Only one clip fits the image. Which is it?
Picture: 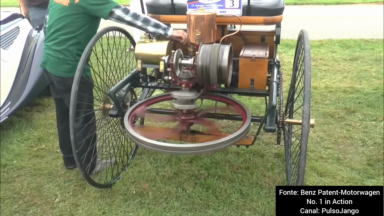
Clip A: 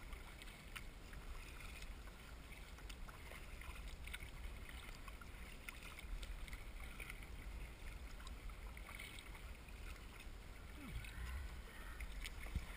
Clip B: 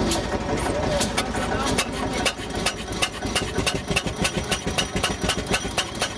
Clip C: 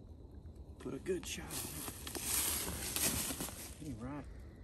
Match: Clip B